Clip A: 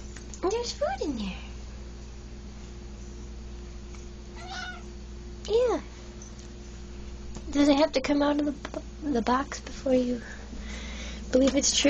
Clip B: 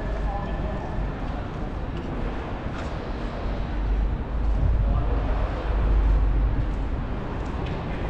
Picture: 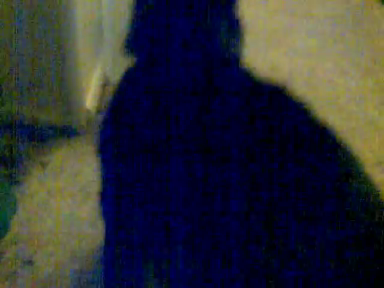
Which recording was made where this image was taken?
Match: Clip A